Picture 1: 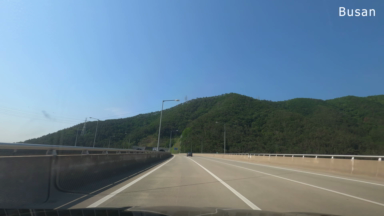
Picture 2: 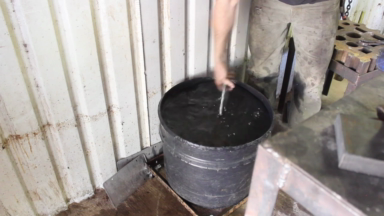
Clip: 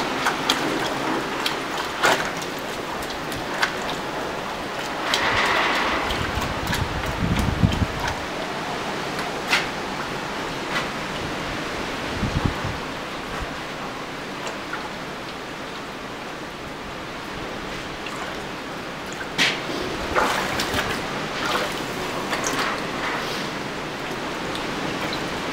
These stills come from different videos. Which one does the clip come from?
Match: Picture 2